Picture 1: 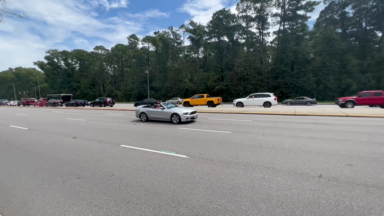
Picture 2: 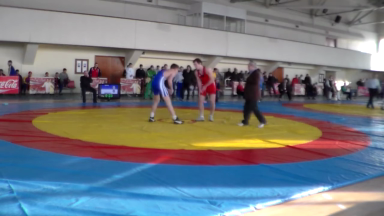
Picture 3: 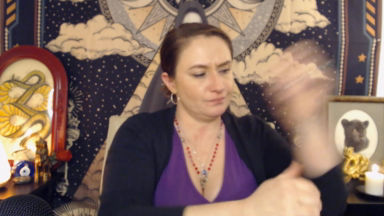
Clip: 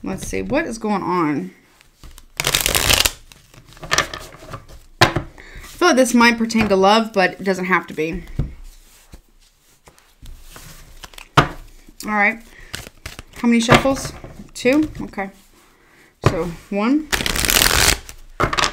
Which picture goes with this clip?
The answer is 3